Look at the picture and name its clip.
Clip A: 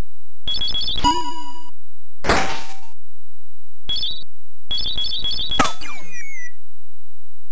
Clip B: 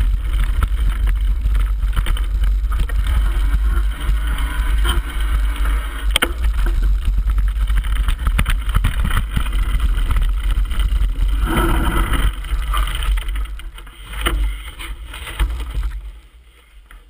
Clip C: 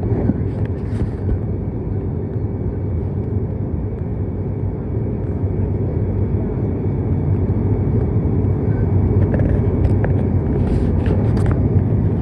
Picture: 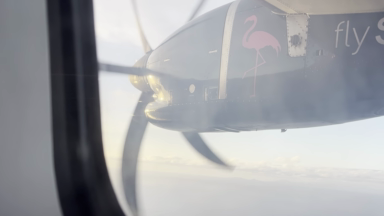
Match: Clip C